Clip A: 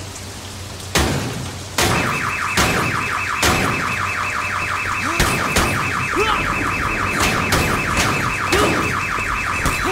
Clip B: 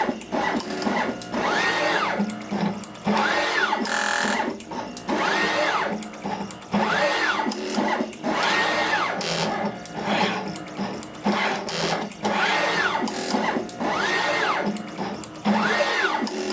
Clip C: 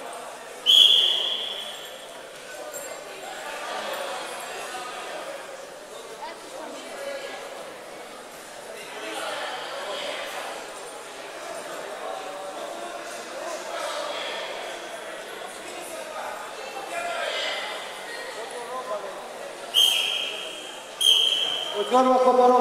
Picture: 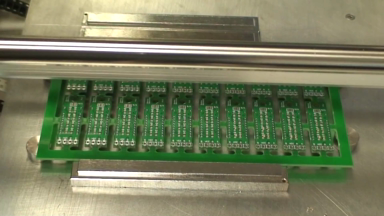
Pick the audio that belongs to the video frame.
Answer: B